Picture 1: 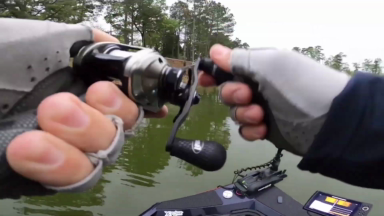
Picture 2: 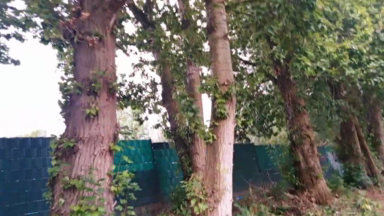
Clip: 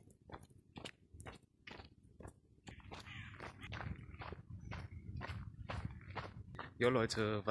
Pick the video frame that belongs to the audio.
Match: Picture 2